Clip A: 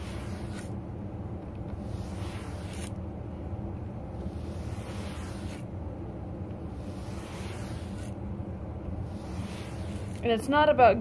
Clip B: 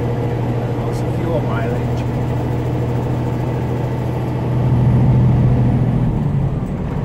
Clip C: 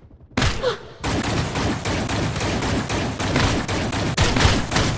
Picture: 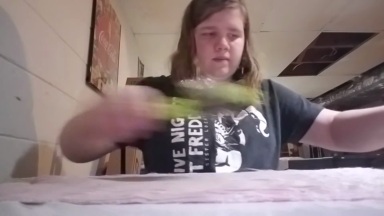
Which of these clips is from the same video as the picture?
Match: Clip A